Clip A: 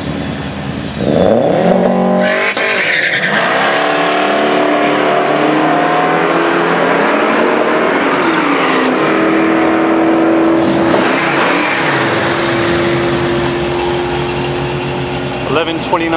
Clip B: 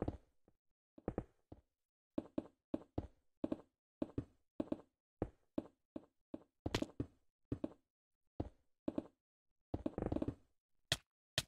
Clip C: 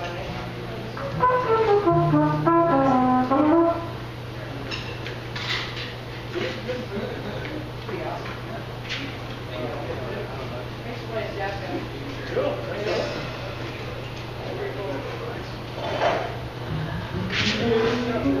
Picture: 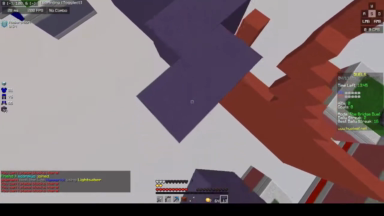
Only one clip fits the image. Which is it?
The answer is B